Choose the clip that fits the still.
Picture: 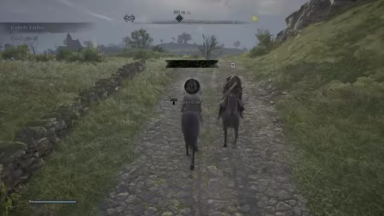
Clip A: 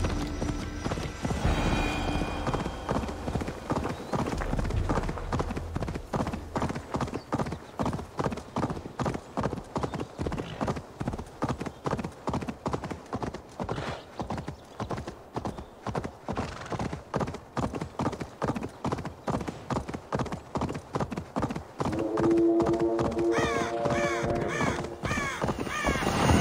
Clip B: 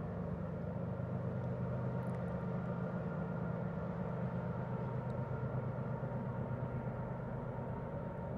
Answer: A